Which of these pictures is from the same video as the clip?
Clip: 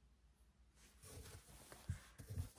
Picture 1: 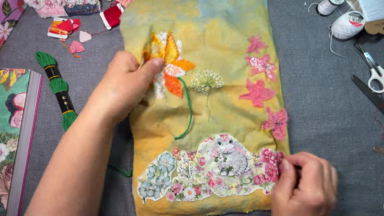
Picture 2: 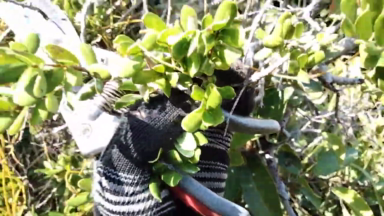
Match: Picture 1